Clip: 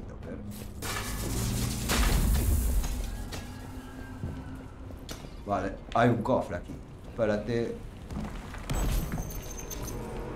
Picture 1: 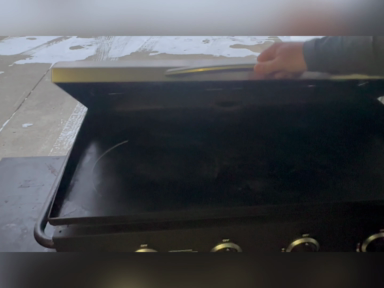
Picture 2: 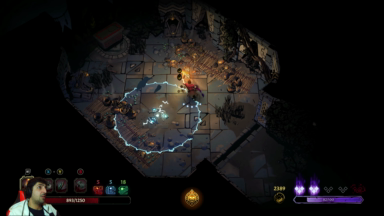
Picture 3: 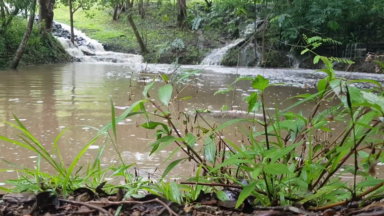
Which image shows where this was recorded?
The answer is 2